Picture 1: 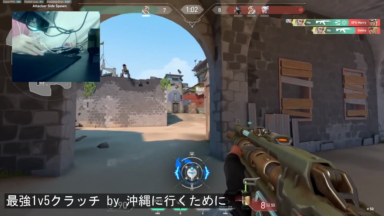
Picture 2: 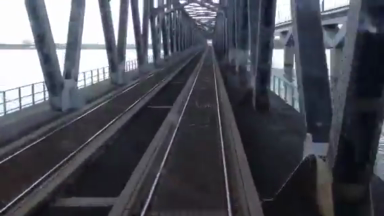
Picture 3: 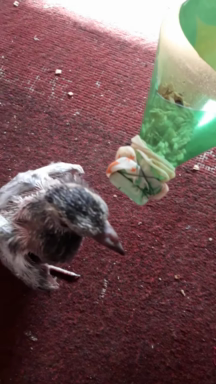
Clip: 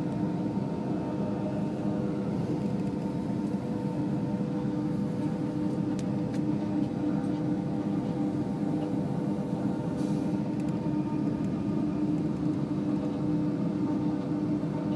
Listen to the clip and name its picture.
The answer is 2